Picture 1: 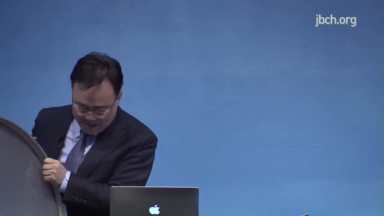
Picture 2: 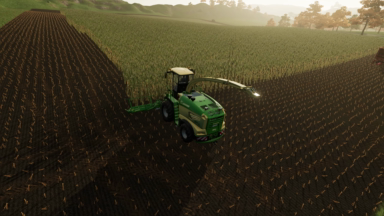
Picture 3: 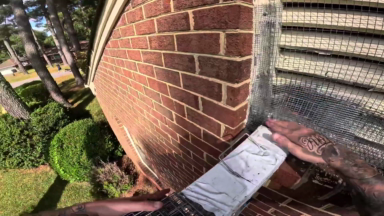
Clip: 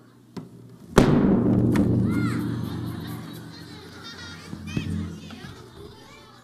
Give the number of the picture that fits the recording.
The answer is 1